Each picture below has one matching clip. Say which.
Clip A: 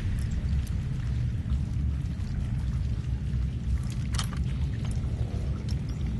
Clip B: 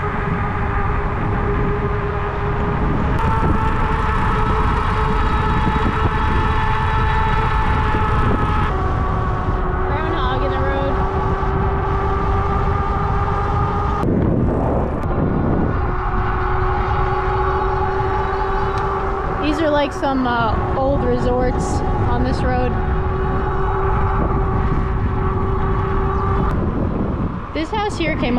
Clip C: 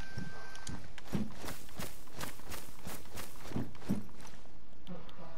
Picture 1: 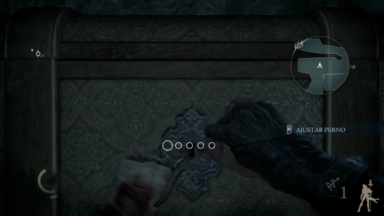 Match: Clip A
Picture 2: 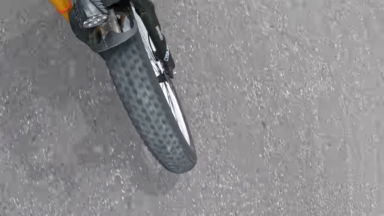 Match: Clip B